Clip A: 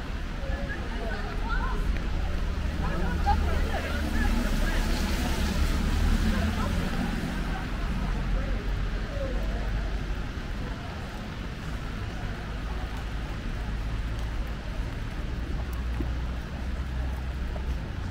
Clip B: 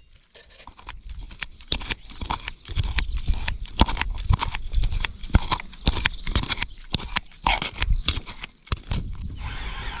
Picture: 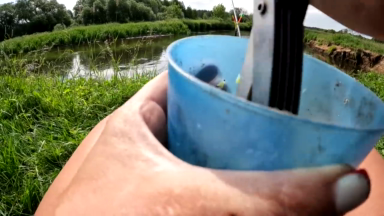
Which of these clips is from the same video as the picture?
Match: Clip B